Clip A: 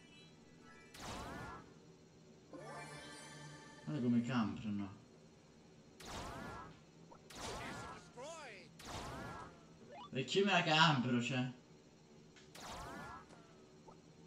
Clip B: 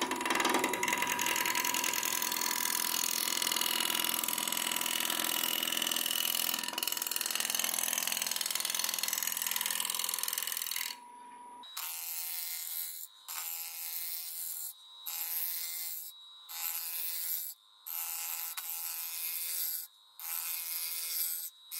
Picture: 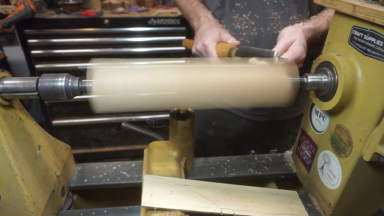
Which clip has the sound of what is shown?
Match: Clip B